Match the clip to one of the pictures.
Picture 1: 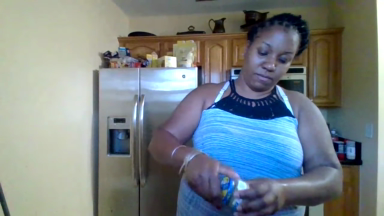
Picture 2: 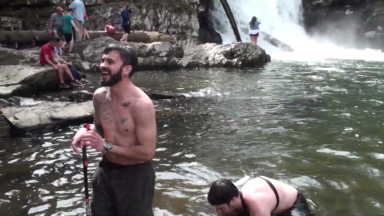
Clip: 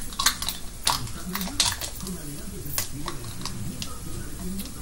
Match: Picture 1